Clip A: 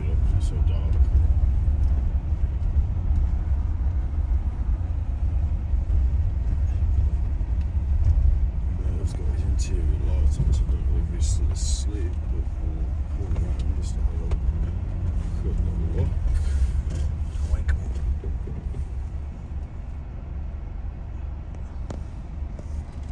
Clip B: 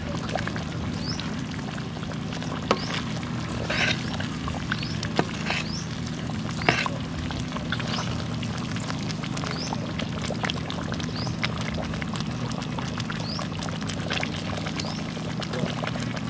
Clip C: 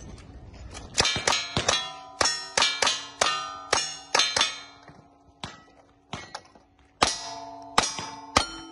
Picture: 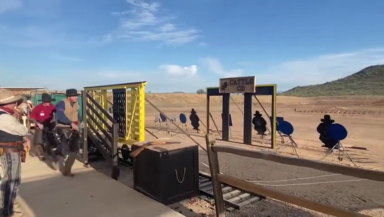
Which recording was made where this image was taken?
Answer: C